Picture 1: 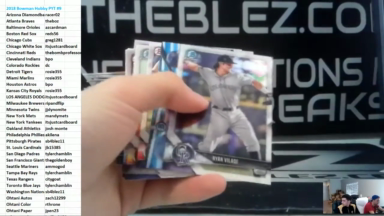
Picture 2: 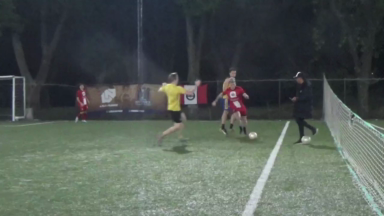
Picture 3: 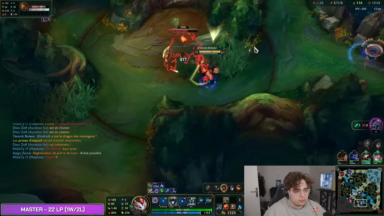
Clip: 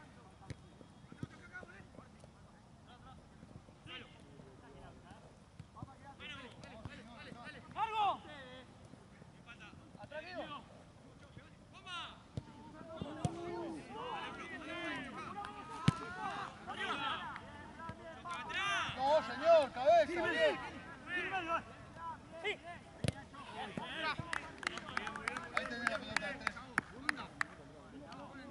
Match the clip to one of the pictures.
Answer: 2